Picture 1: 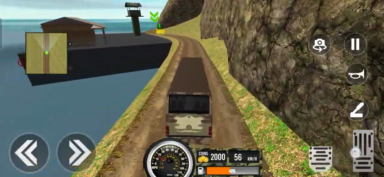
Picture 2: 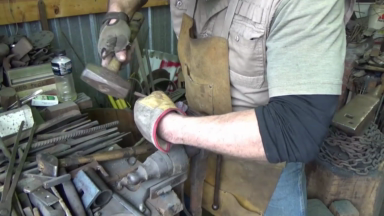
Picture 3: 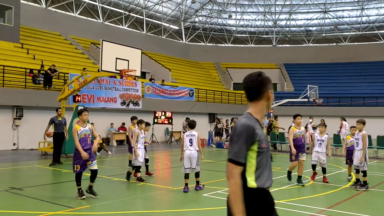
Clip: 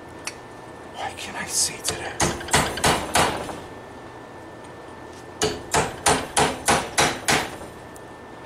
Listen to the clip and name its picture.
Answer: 2